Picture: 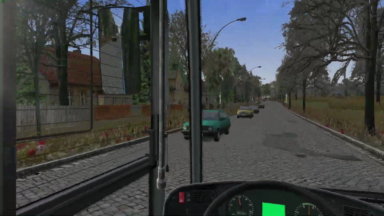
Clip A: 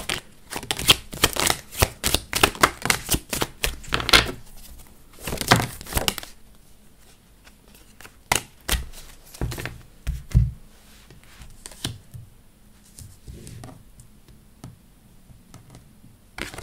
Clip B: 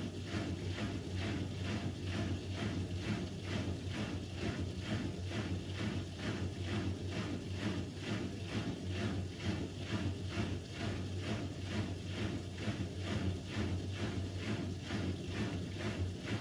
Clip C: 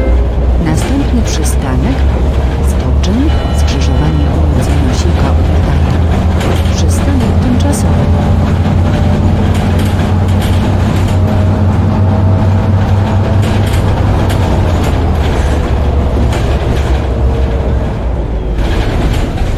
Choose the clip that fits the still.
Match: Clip C